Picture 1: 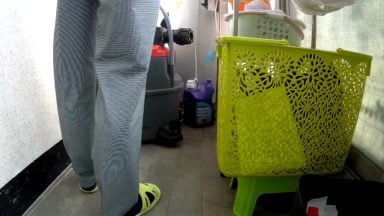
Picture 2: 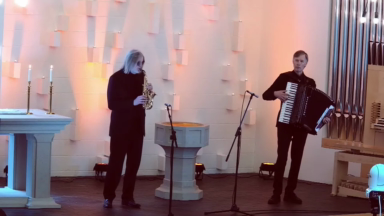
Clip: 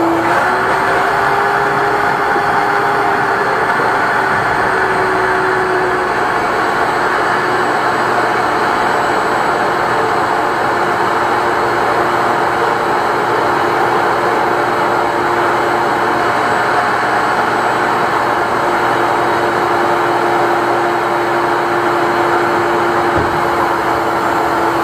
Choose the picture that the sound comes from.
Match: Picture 1